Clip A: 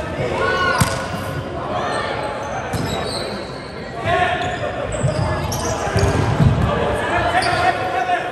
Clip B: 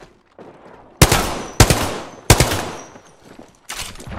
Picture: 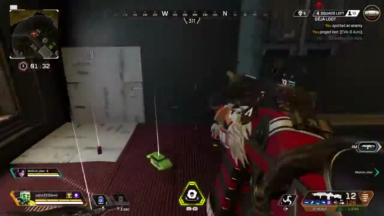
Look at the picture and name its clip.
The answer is B